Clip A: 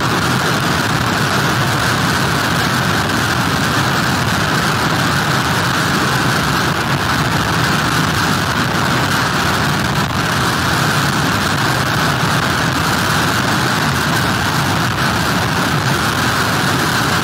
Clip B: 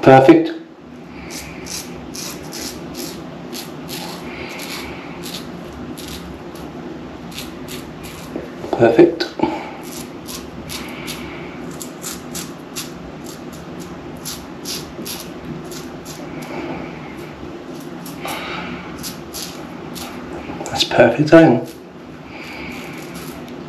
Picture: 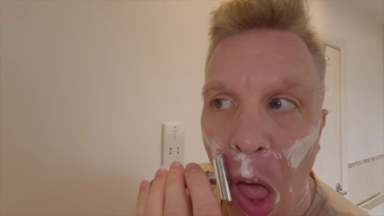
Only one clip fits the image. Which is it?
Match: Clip B